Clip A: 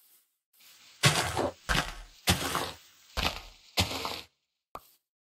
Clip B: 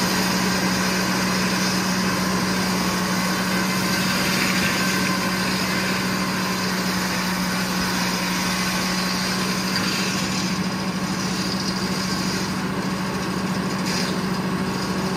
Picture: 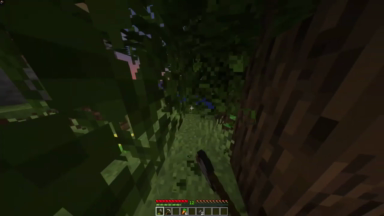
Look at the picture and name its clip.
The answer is A